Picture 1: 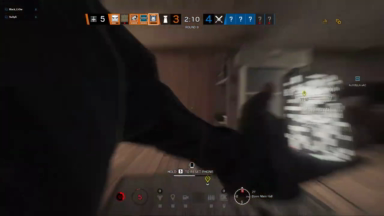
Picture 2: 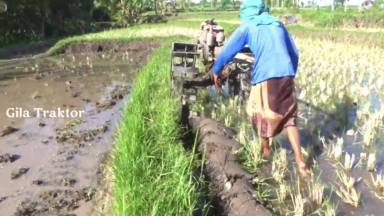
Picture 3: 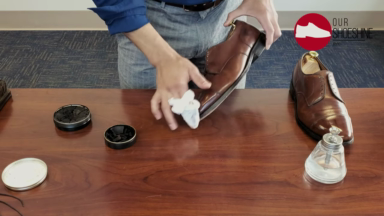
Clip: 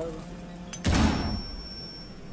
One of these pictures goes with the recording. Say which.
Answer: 1